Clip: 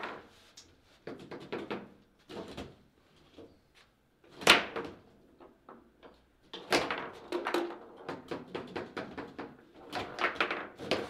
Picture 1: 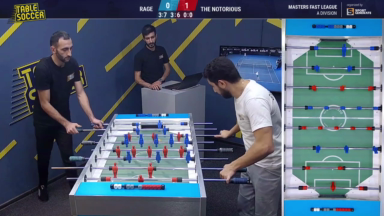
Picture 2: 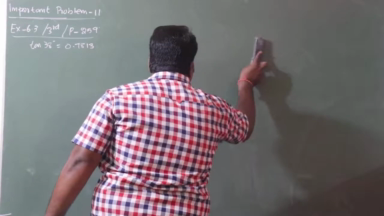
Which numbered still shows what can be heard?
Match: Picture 1